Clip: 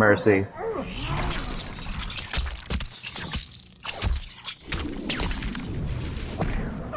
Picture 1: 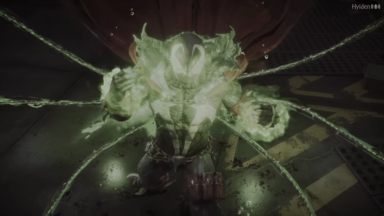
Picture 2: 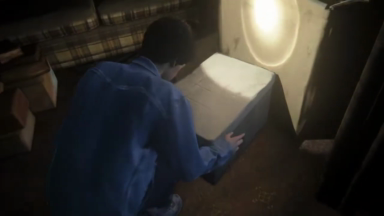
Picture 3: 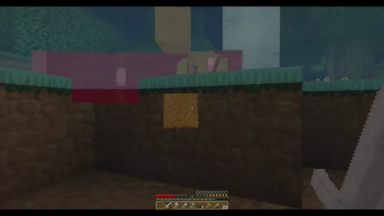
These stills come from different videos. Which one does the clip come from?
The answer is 1